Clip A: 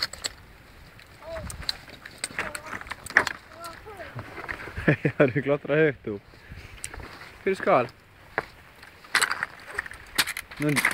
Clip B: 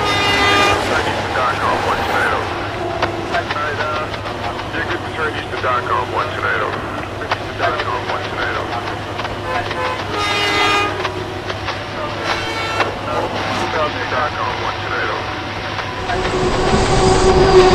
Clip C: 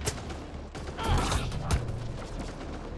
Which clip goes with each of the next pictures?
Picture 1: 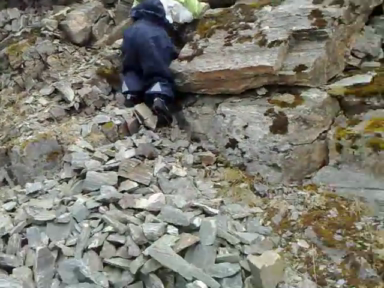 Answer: A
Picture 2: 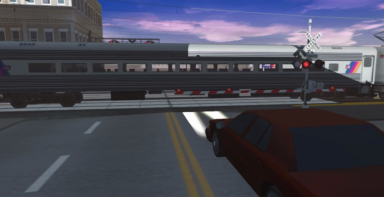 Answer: B